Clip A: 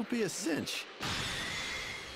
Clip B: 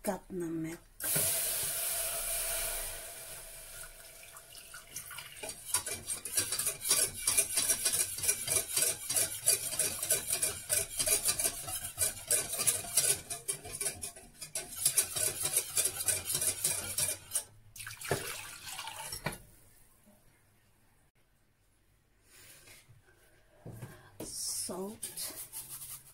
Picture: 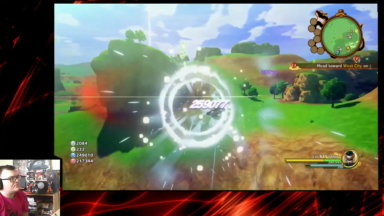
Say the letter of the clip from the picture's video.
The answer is A